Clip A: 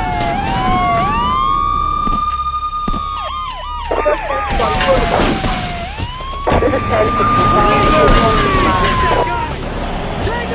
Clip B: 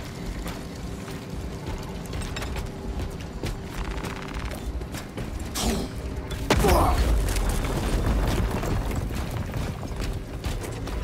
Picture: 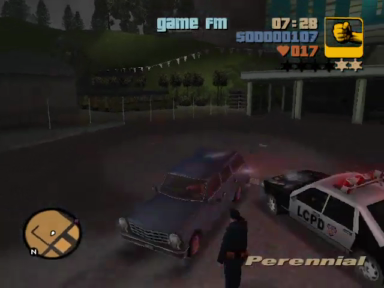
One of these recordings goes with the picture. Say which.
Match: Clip A